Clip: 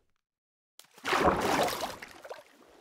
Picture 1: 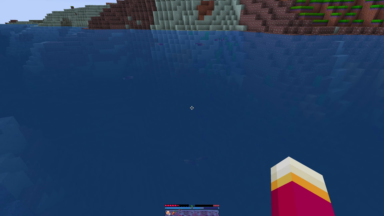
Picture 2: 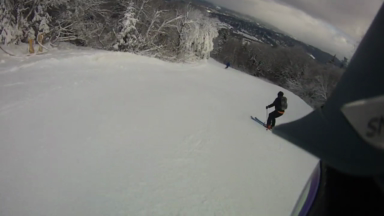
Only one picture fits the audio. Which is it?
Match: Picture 1